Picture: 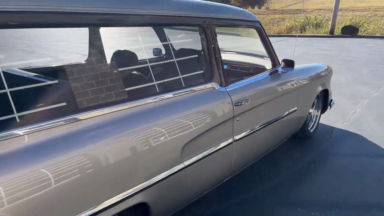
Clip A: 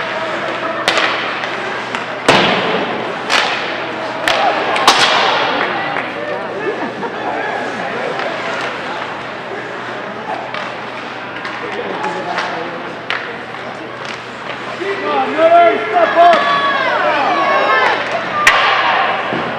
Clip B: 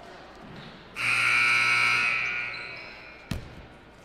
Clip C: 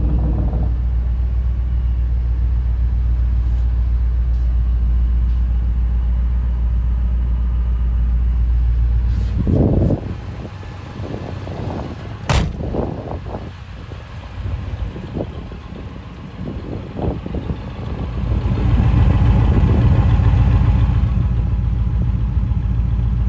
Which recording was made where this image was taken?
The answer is C